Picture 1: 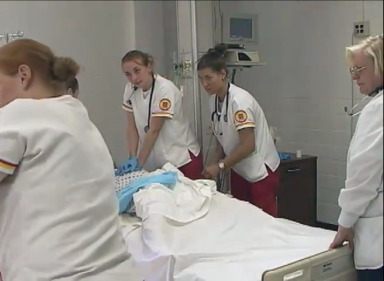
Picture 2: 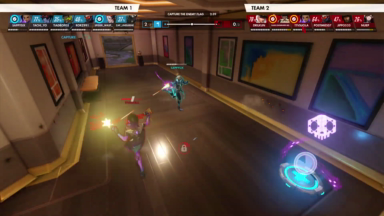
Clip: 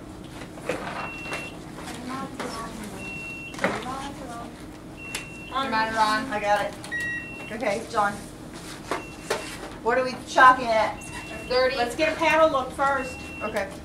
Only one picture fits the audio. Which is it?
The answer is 1